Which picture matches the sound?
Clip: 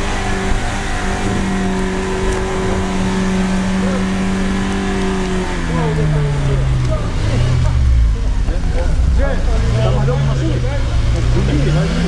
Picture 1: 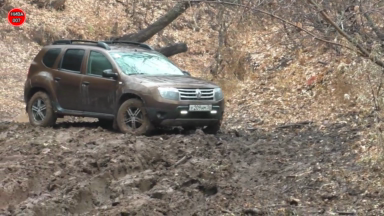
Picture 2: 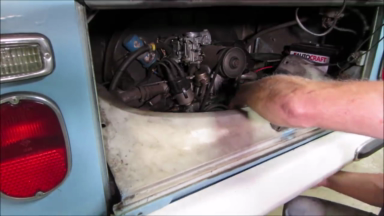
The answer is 1